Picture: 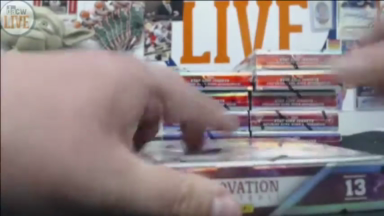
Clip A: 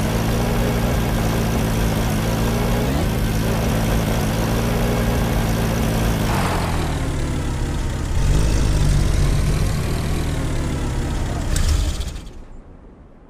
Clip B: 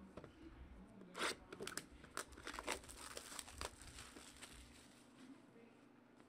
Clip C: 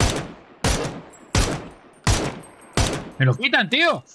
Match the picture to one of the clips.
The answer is B